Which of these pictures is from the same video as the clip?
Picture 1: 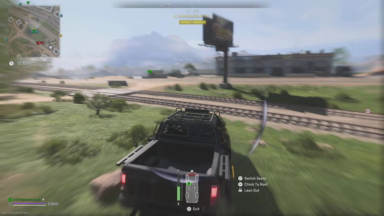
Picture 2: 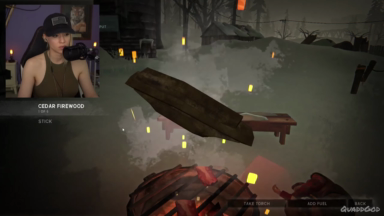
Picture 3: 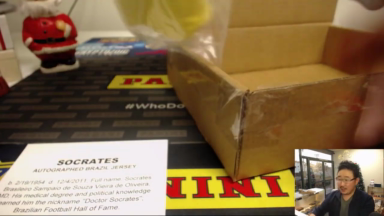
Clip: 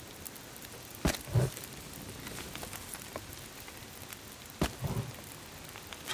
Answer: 2